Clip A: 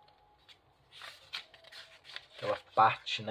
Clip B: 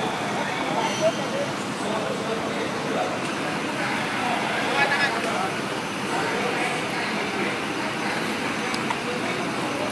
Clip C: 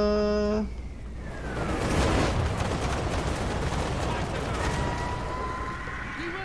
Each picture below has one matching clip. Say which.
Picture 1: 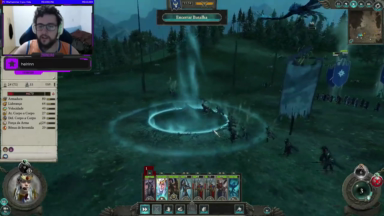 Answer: C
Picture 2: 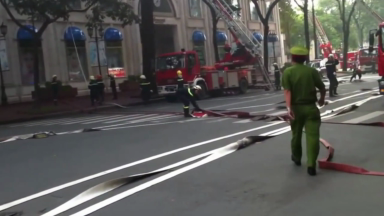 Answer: B